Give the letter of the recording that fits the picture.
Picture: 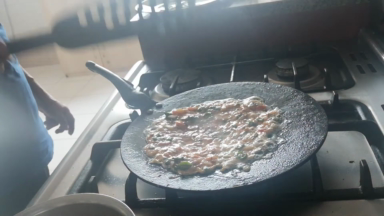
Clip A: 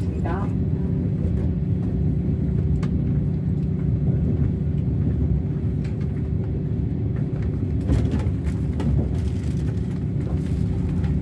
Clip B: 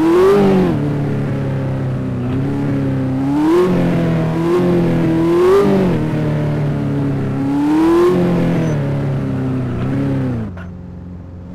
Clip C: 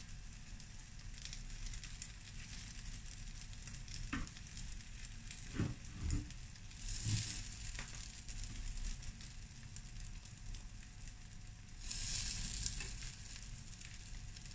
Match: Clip C